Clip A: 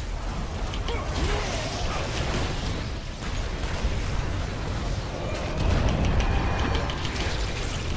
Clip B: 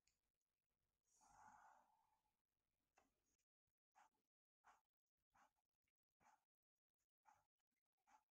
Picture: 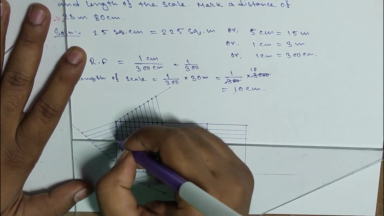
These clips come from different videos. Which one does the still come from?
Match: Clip B